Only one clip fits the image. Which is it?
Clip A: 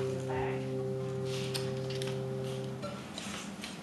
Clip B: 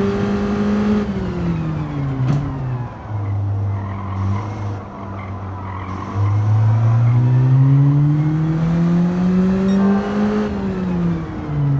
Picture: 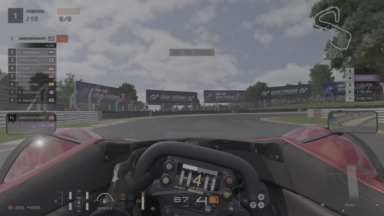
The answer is B